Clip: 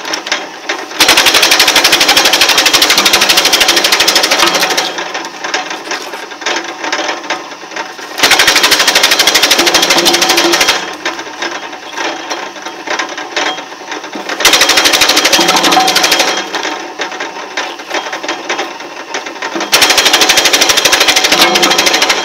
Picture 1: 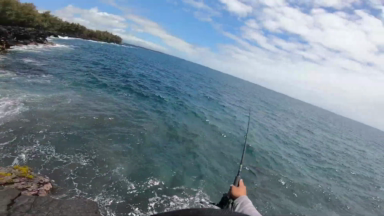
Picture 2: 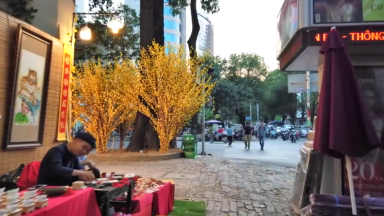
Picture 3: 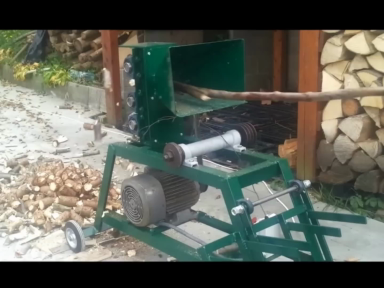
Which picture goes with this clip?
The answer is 3